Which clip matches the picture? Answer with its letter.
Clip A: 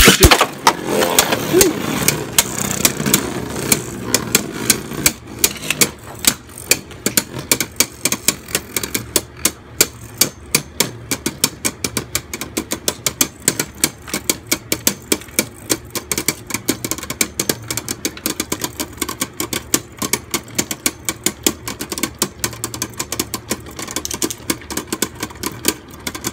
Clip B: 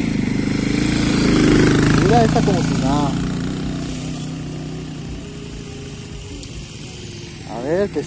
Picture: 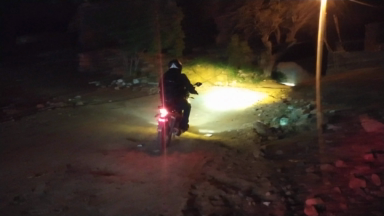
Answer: B